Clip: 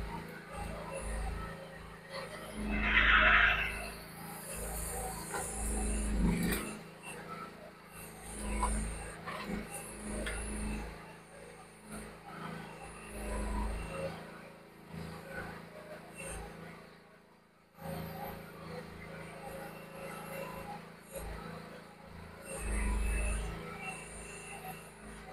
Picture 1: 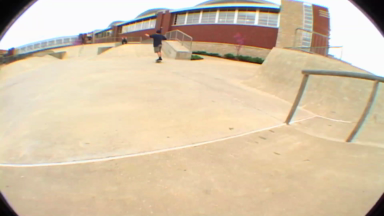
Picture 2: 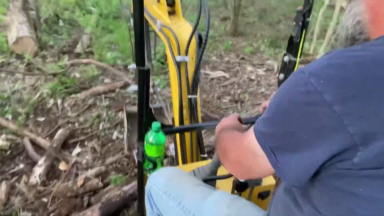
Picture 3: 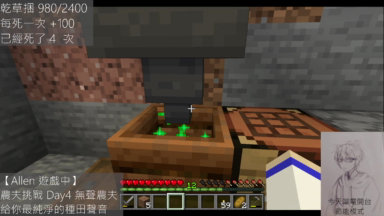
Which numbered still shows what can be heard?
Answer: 2